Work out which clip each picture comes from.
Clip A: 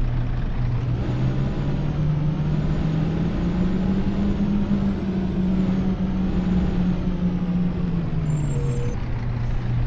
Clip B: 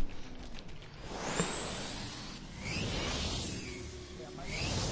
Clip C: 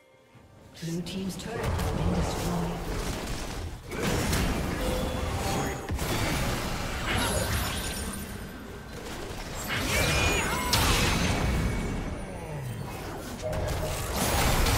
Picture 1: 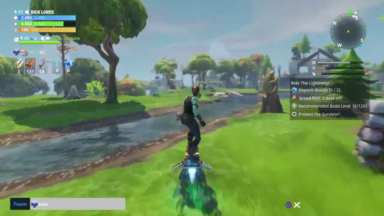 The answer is B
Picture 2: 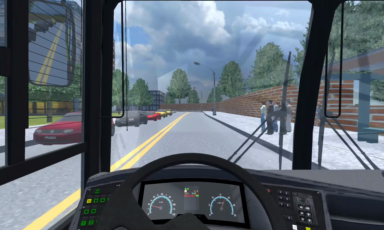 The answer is A